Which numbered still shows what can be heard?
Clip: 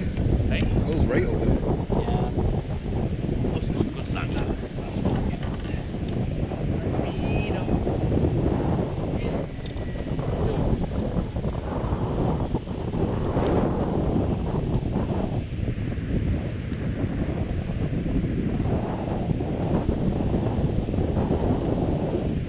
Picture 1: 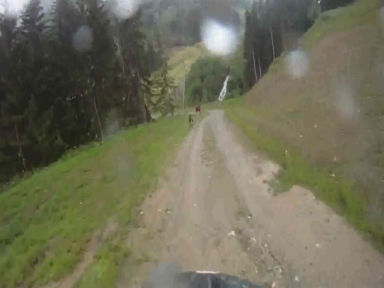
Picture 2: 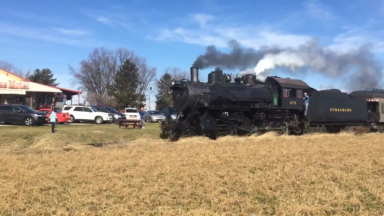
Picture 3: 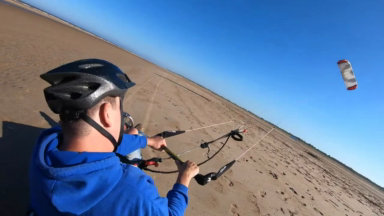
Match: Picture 3